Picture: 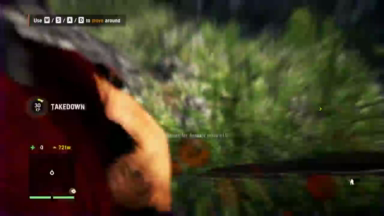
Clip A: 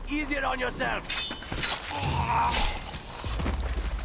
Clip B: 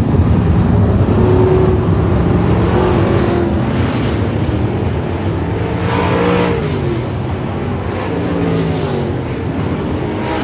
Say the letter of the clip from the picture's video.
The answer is A